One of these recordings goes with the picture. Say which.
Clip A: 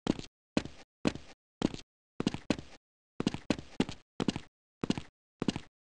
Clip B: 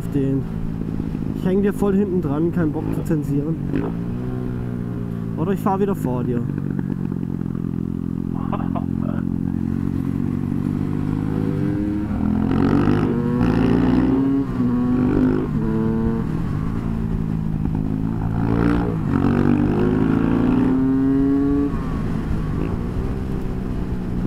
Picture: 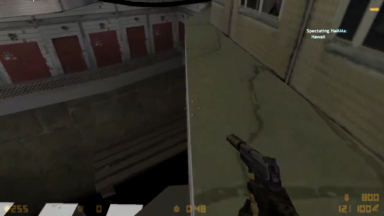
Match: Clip A